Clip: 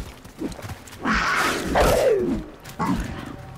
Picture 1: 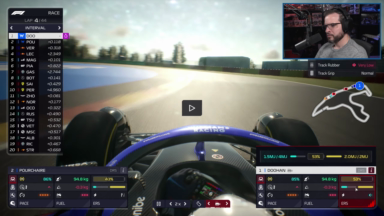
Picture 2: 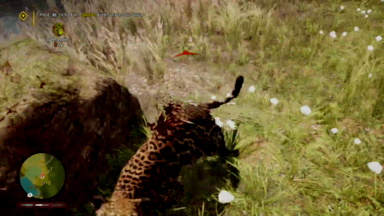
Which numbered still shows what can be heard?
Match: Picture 2